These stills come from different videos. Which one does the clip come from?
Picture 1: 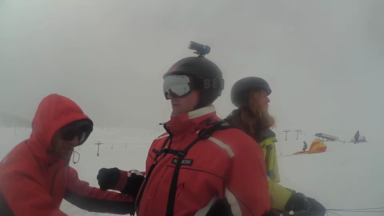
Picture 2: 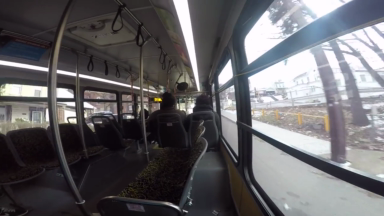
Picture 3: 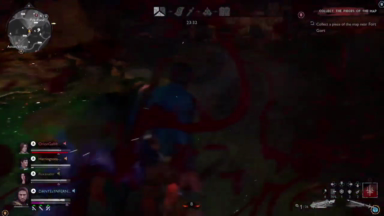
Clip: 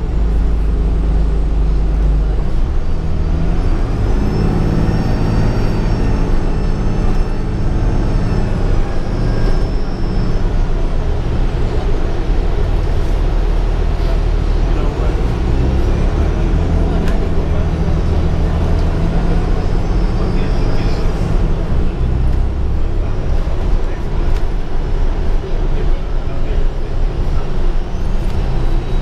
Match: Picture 2